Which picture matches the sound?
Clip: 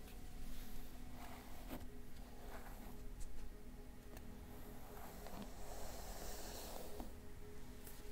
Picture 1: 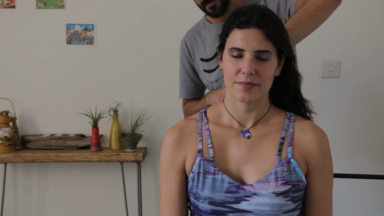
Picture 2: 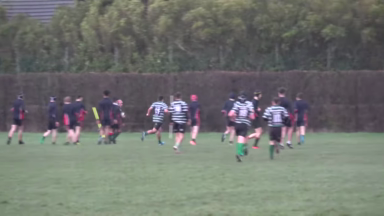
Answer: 1